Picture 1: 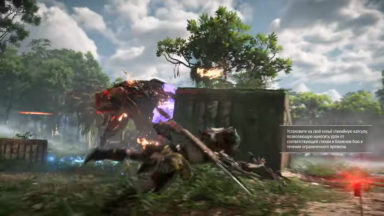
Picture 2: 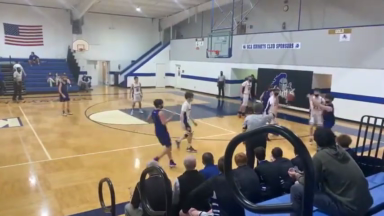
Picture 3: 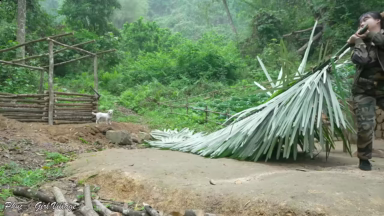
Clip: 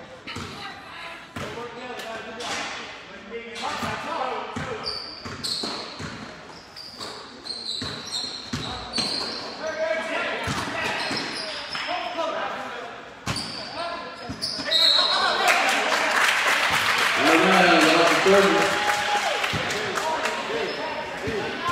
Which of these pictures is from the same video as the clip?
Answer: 2